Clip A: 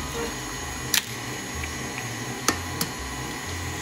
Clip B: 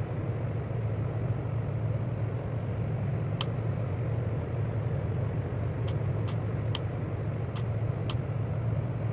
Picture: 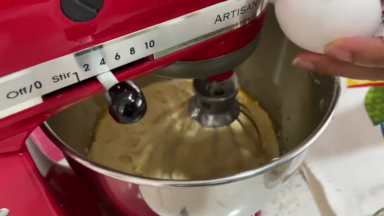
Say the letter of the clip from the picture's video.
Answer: A